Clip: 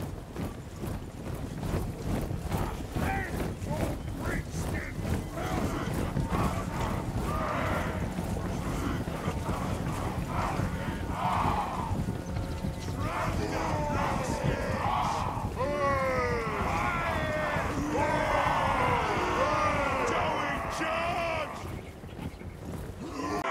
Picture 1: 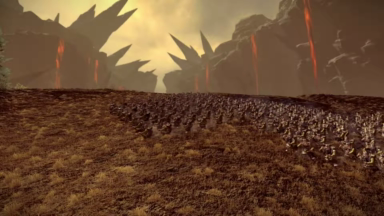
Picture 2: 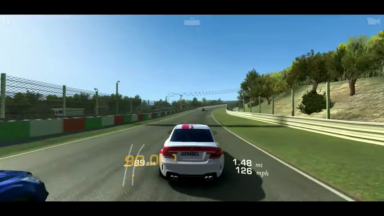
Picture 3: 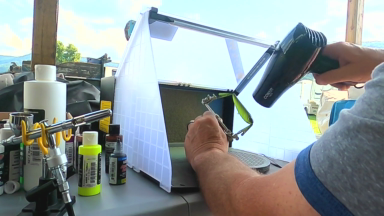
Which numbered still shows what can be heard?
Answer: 1